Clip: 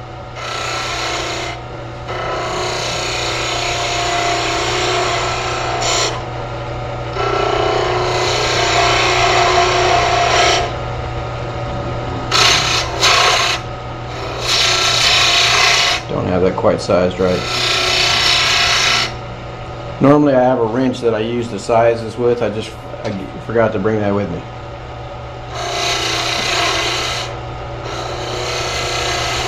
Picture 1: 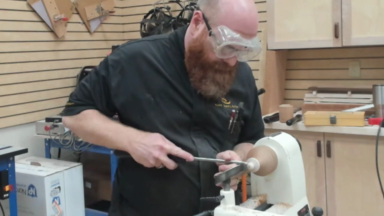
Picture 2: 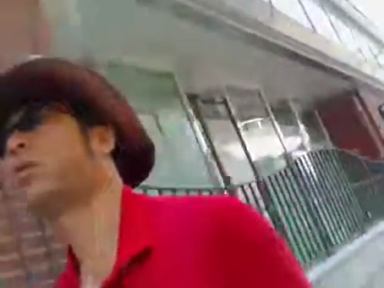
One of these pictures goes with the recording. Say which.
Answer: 1